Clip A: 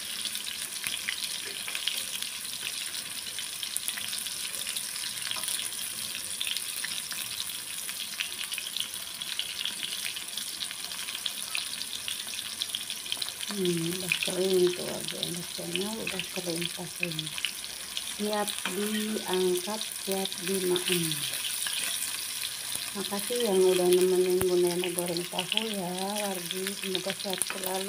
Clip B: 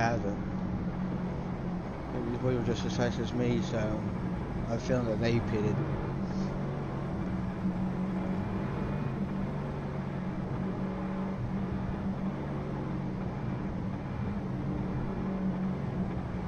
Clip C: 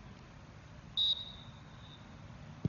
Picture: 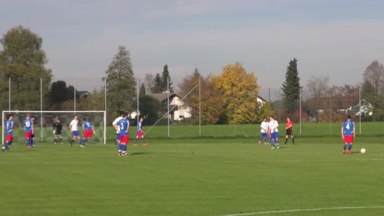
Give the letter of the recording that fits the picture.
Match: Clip C